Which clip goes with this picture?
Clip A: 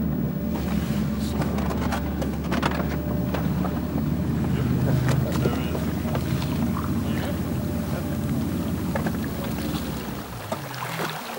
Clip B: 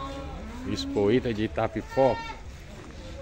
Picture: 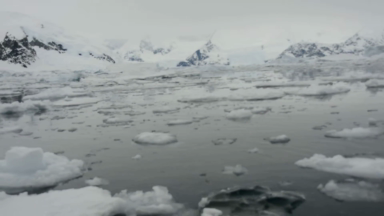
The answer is A